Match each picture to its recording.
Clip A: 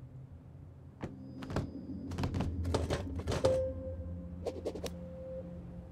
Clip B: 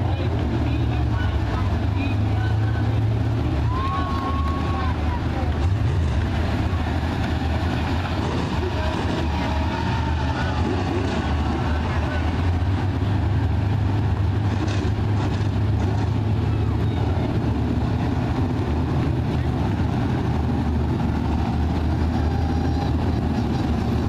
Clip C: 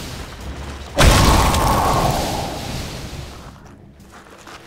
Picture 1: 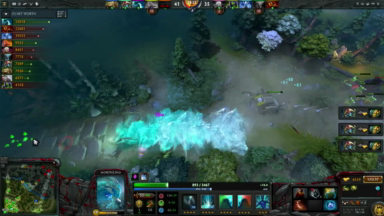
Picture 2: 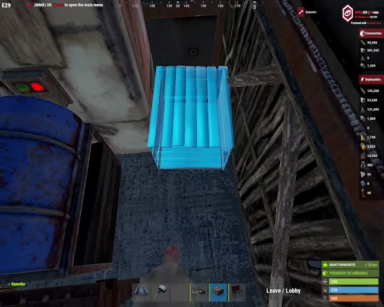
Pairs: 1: C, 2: A